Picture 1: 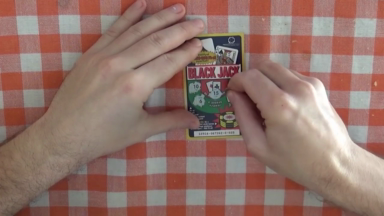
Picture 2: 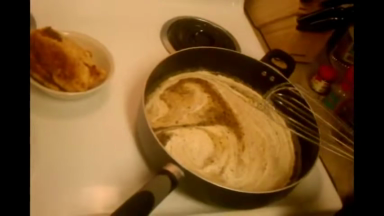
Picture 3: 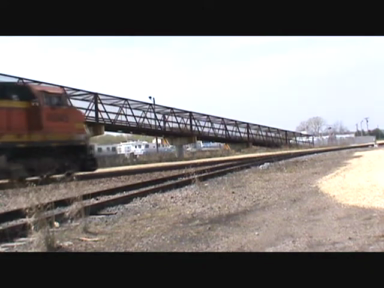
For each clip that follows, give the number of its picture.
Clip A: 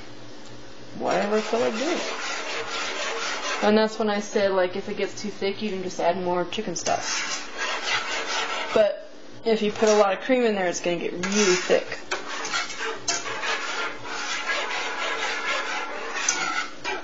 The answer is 2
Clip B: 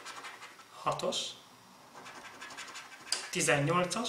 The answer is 1